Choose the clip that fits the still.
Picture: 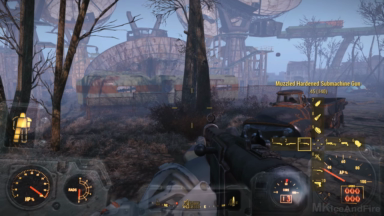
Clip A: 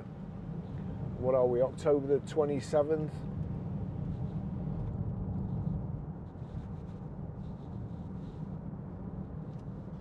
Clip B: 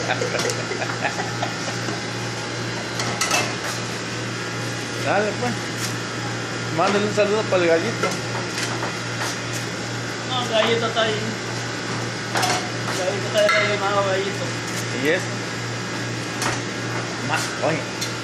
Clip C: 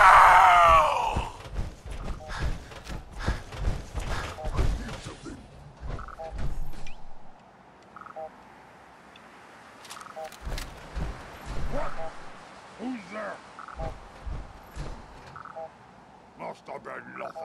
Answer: C